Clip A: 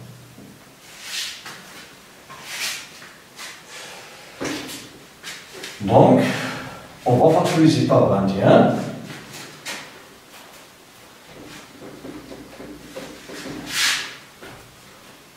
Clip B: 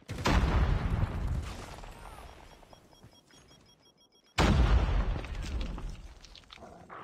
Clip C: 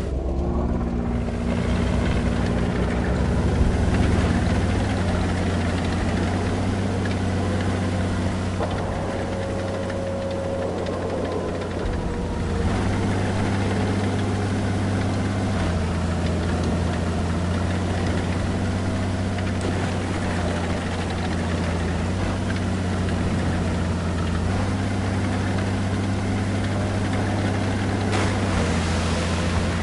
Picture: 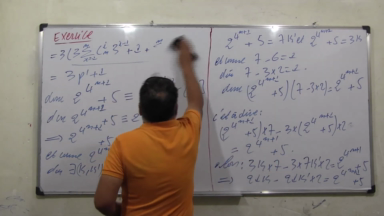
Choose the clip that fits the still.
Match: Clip A